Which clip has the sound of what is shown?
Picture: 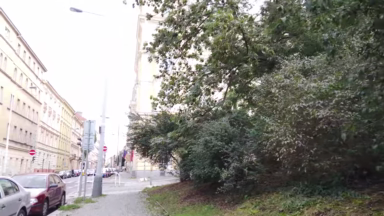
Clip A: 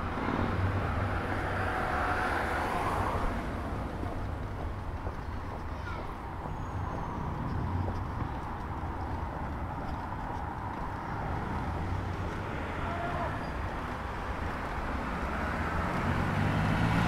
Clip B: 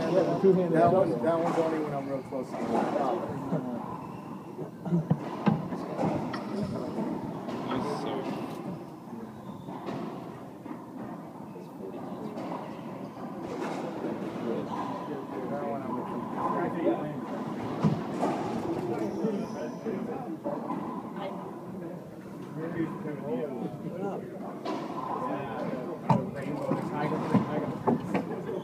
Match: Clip A